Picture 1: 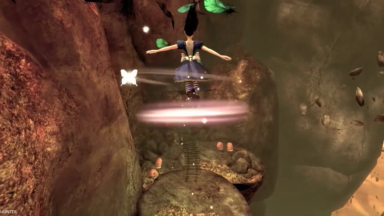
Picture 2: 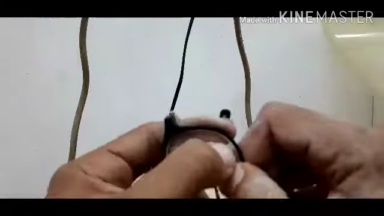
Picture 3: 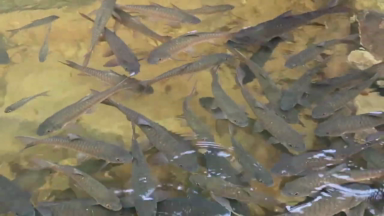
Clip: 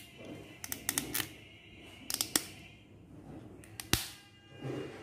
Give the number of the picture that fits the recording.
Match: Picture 2